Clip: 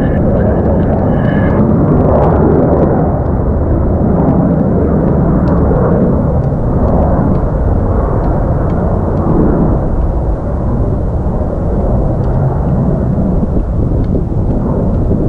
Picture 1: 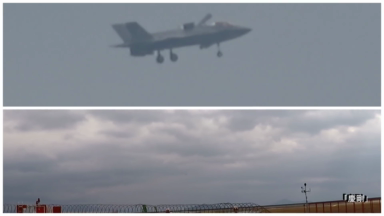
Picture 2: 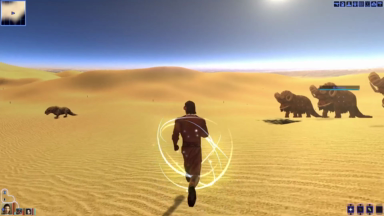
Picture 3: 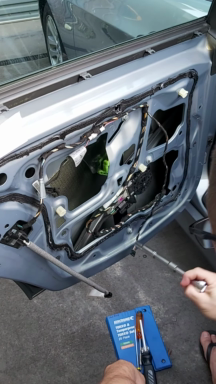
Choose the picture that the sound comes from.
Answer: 1